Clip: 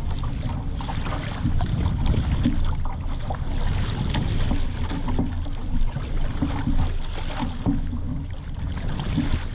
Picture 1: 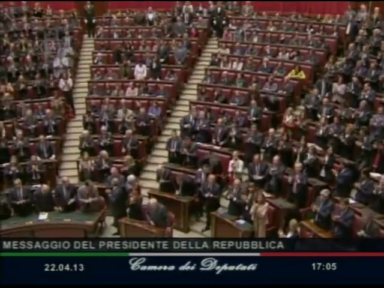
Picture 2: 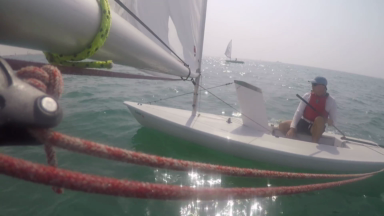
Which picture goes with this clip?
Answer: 2